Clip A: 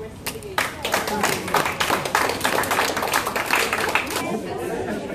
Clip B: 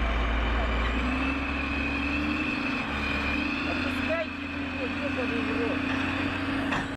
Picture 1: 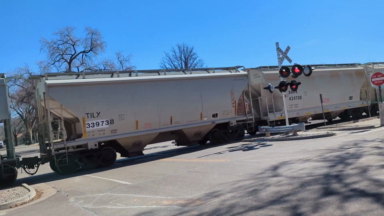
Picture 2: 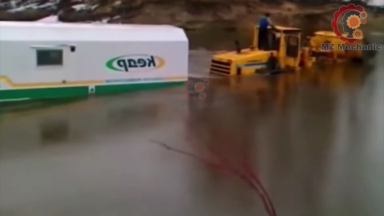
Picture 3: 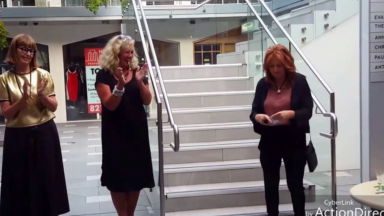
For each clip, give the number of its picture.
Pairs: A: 3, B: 2